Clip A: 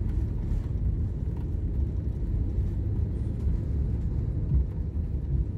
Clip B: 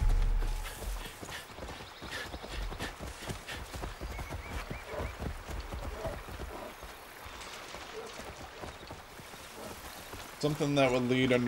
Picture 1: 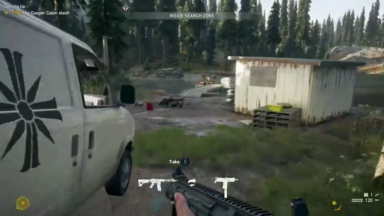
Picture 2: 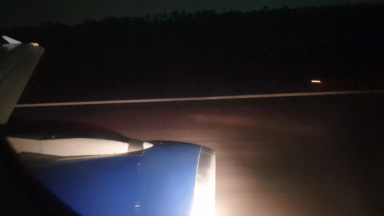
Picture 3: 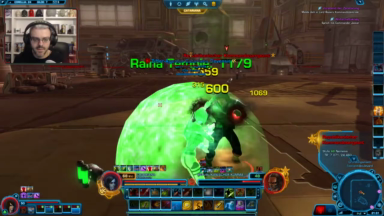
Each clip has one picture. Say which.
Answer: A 2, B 1